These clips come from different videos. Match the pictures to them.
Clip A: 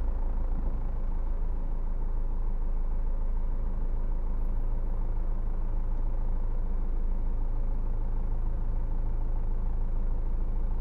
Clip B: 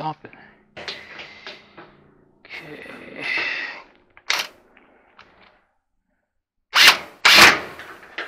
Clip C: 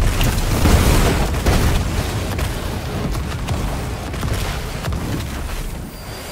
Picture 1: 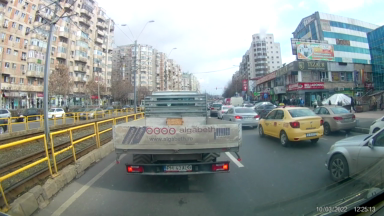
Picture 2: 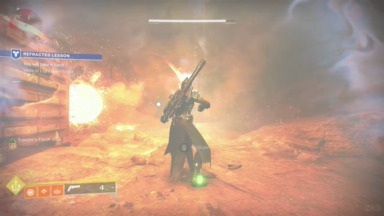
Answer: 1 A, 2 C